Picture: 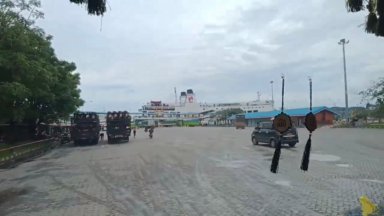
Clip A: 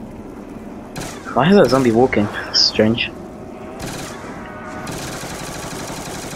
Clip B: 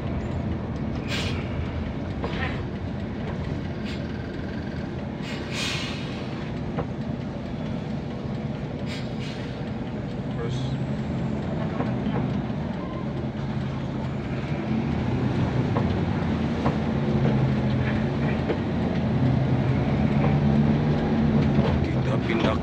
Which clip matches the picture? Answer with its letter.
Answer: B